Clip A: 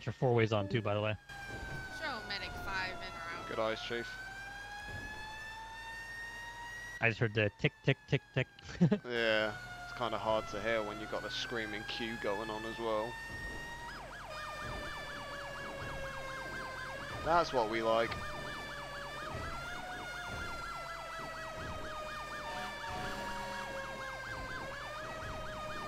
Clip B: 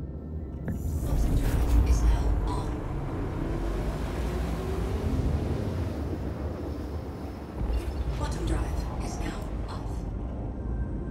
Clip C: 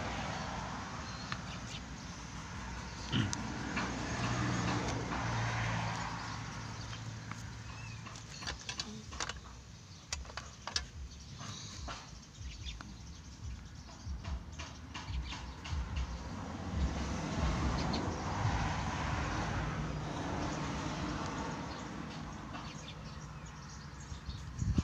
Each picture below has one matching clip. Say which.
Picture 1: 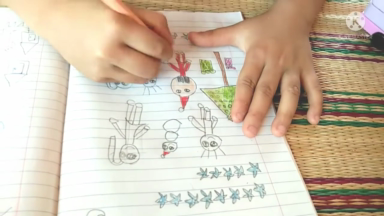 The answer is C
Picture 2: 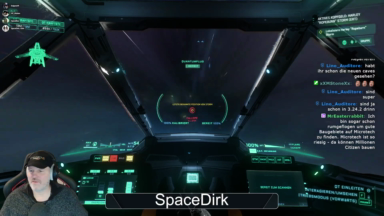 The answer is B